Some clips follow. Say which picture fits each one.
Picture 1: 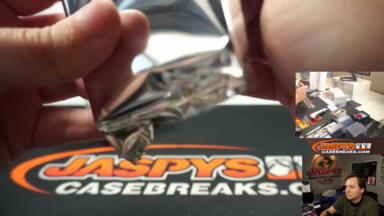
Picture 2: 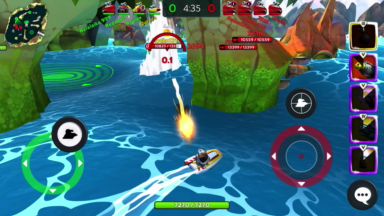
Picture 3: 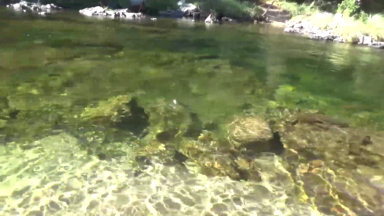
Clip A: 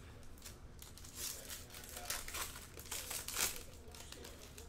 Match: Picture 1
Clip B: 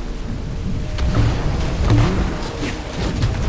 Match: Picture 2